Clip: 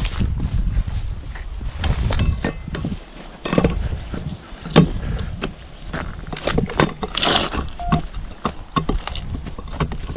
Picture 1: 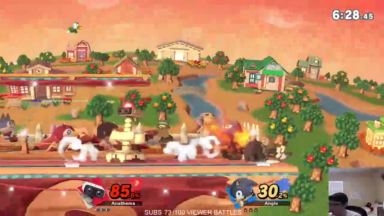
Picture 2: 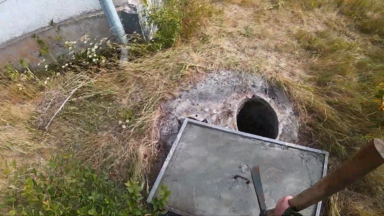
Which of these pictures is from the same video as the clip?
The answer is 2